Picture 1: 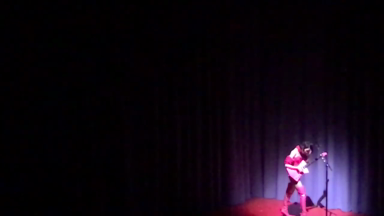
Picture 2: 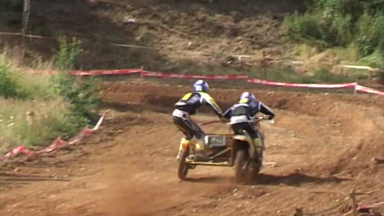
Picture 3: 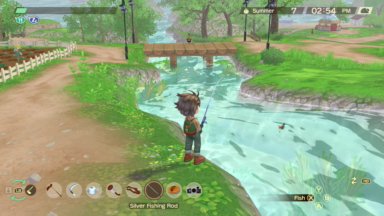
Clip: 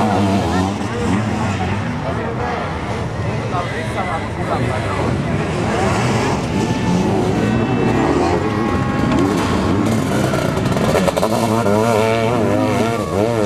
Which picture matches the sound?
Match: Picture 2